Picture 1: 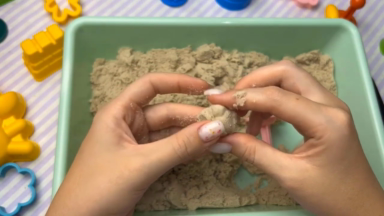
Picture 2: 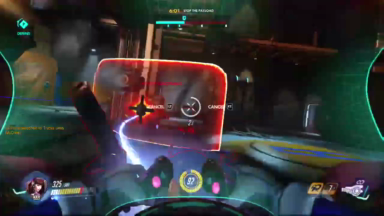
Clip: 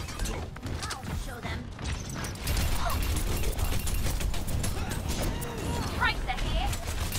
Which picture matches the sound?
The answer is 2